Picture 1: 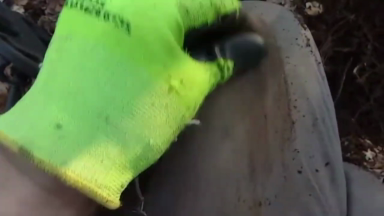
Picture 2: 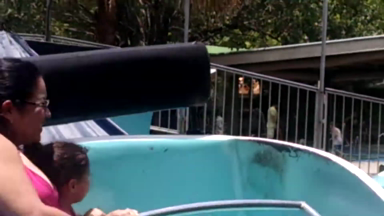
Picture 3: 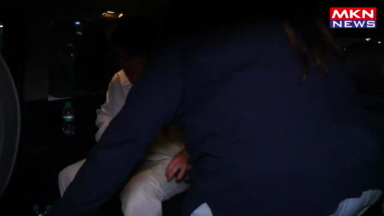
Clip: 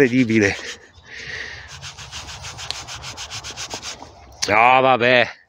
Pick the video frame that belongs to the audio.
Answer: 1